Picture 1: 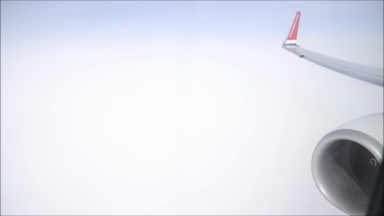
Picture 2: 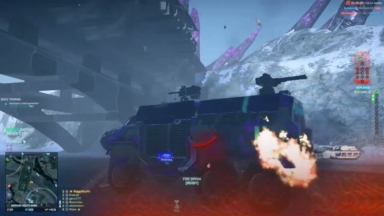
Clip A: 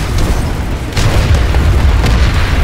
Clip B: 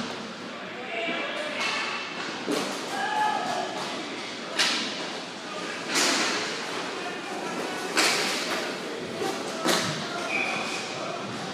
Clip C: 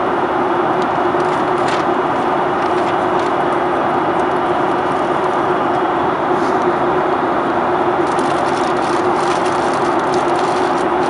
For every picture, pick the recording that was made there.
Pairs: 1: C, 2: A